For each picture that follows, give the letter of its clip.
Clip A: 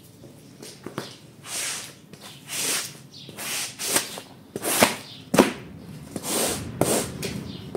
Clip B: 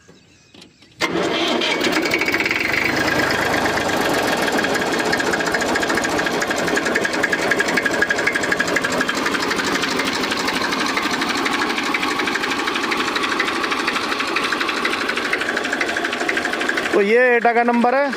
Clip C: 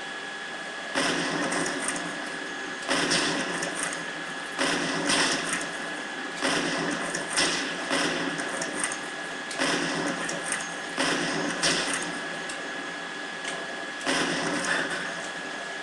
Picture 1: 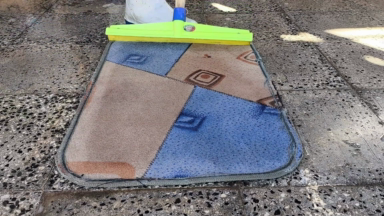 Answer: A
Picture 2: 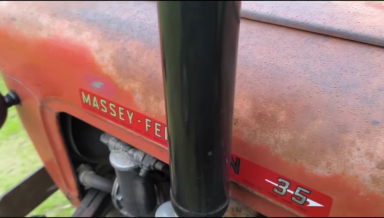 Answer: B